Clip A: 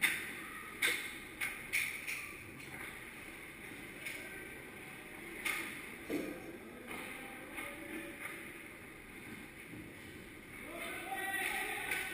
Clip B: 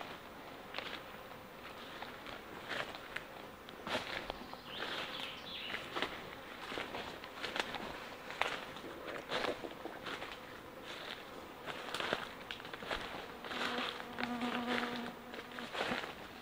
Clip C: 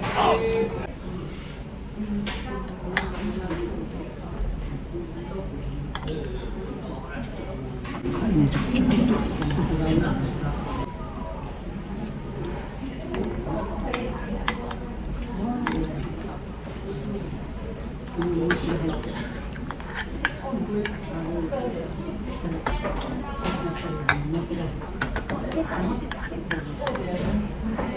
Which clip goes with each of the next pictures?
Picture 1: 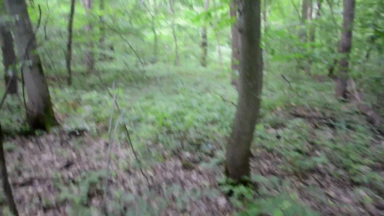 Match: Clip B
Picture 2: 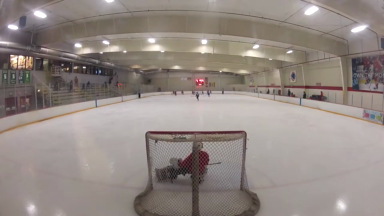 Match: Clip A